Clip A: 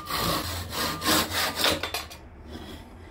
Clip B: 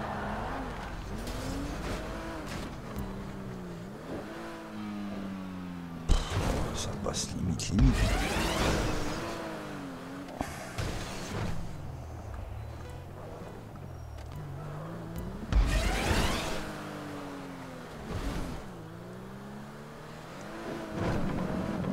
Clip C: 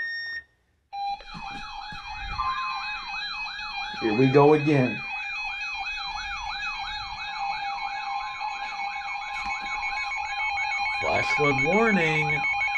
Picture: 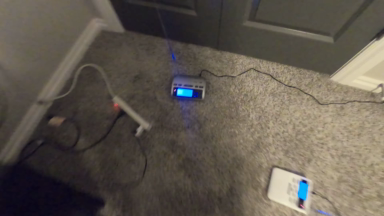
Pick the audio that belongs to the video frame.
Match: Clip C